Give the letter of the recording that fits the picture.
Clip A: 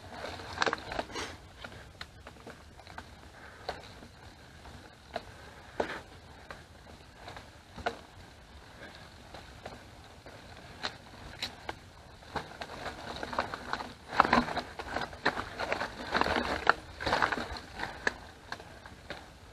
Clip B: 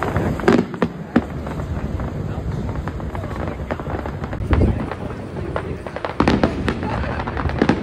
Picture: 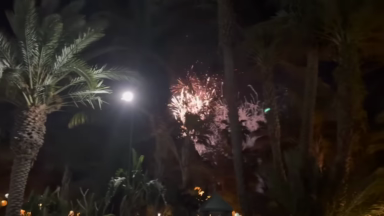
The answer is B